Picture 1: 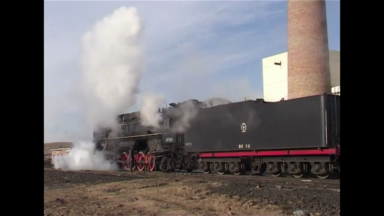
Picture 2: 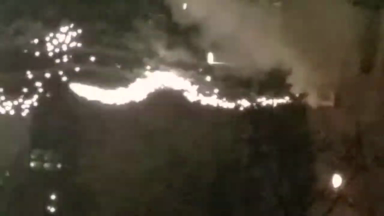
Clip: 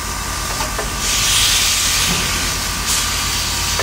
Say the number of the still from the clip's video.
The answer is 1